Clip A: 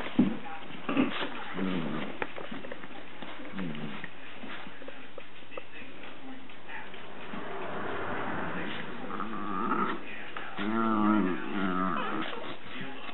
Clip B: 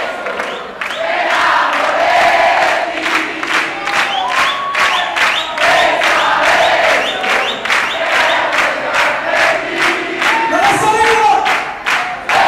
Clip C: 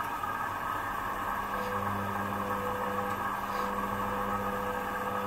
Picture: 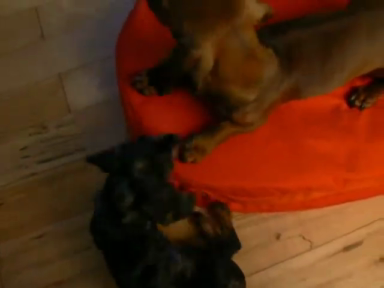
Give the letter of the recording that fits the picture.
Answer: A